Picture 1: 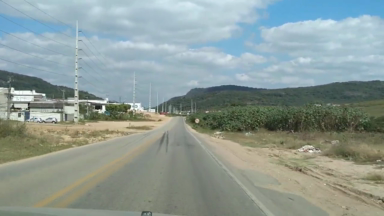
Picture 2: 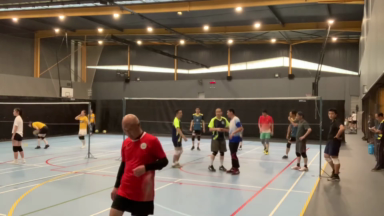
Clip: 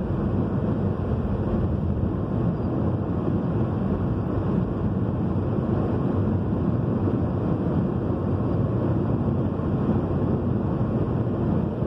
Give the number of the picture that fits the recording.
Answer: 1